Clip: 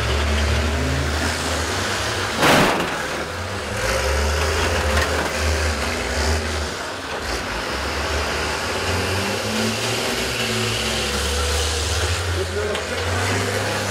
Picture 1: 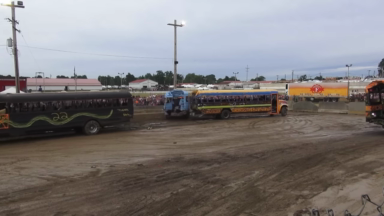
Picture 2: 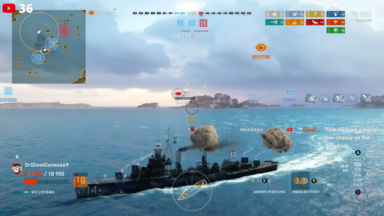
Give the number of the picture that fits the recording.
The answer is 1